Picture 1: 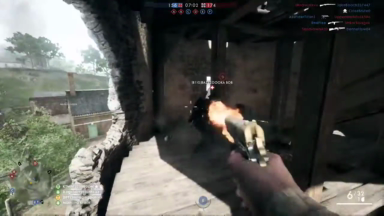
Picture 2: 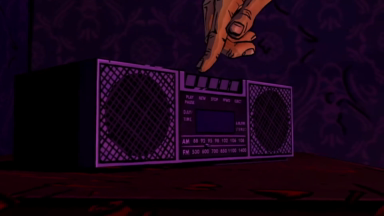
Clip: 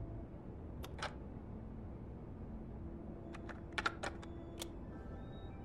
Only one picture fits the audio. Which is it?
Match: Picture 2